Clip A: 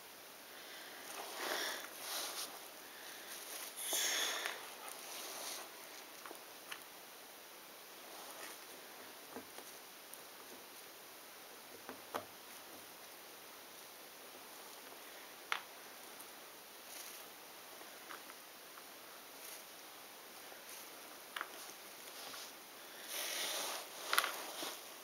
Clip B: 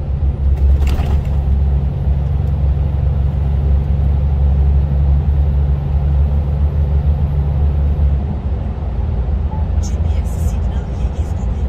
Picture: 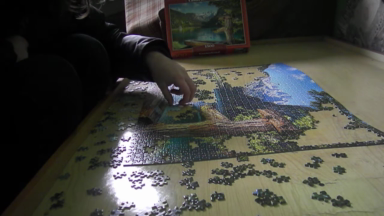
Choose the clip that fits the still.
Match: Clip A